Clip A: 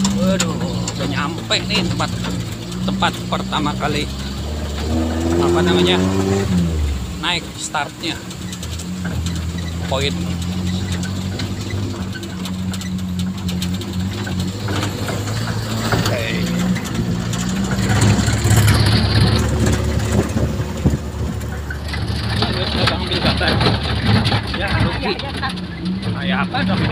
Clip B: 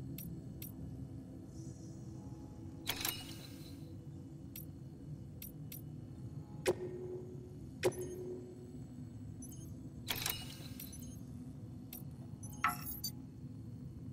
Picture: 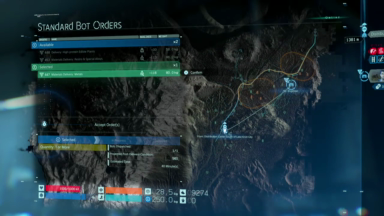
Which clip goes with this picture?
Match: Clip B